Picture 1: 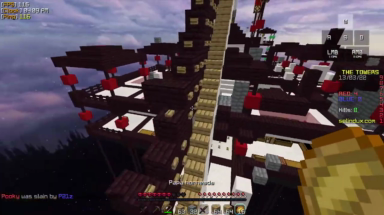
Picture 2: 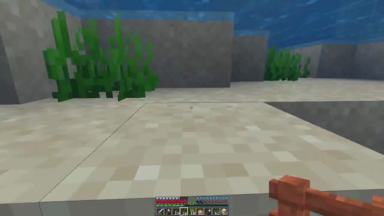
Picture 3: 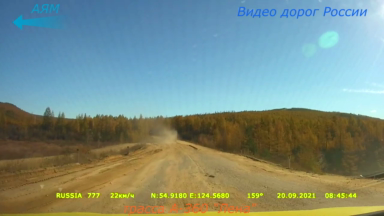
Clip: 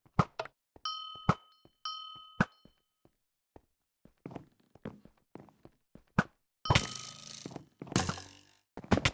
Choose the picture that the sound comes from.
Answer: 1